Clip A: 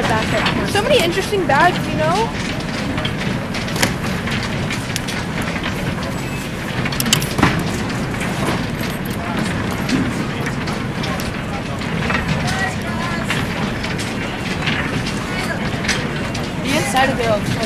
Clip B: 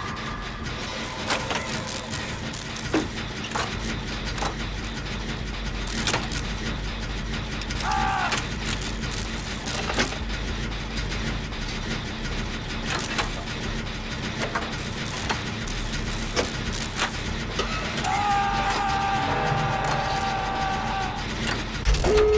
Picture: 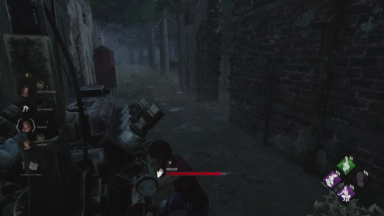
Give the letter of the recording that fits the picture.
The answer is B